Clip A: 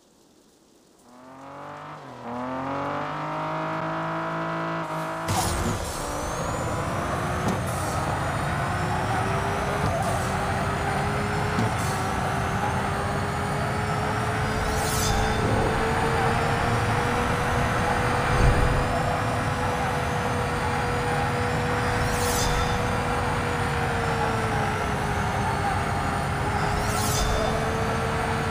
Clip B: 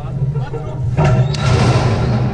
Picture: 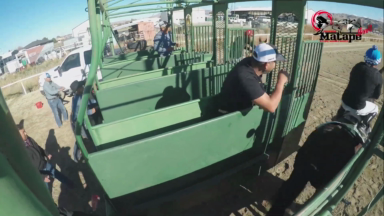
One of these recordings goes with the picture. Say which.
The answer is B